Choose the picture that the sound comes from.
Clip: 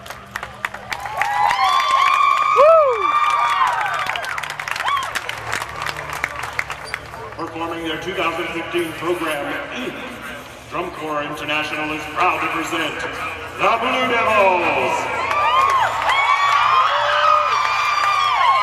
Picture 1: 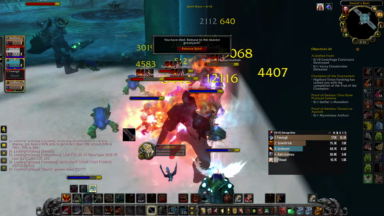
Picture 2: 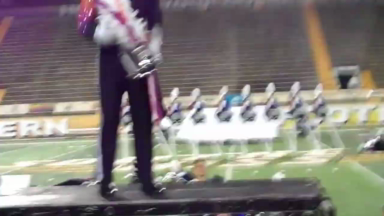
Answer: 2